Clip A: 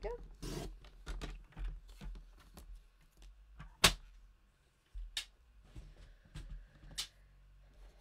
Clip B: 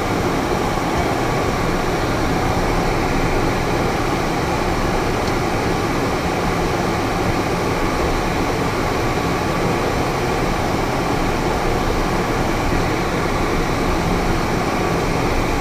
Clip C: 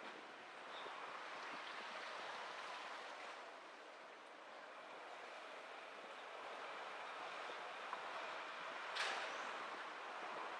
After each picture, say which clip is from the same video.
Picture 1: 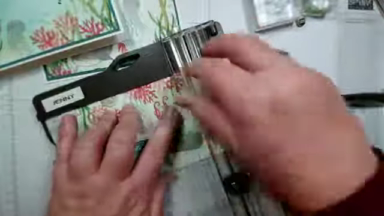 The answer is A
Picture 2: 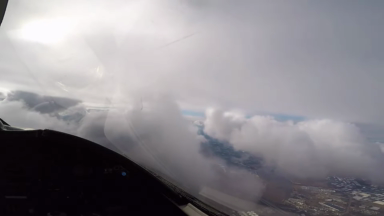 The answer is B